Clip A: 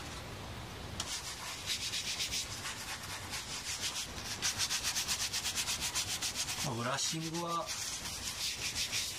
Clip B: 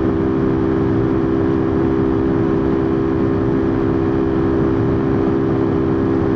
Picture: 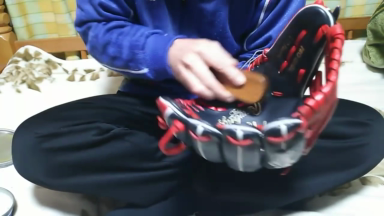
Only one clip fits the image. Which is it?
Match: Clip A